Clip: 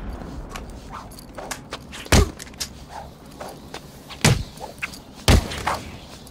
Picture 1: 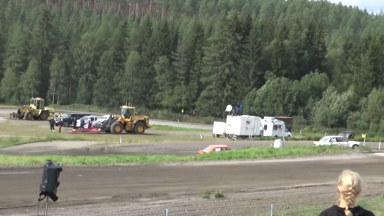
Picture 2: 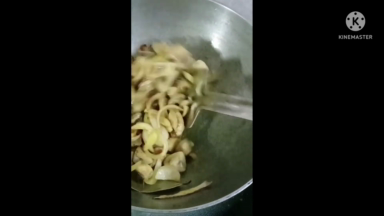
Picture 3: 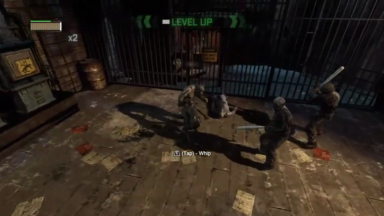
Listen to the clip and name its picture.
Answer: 3